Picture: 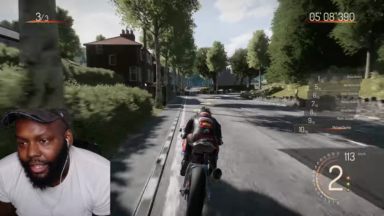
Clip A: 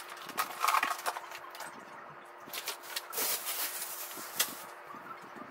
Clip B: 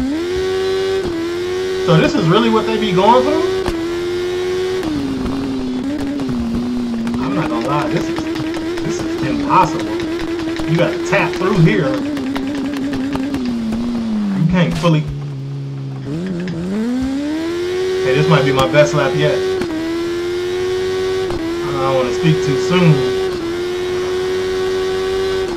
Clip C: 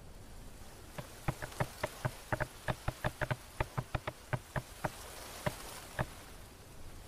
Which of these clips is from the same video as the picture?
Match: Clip B